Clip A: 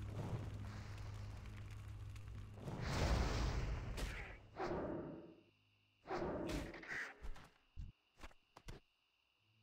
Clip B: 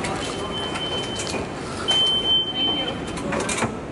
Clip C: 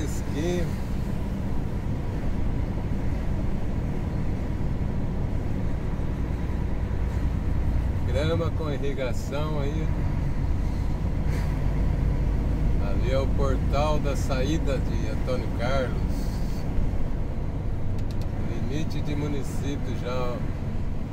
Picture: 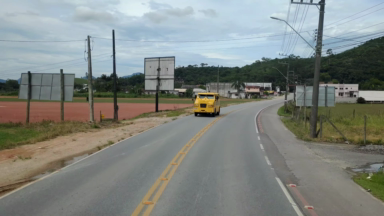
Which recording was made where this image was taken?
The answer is C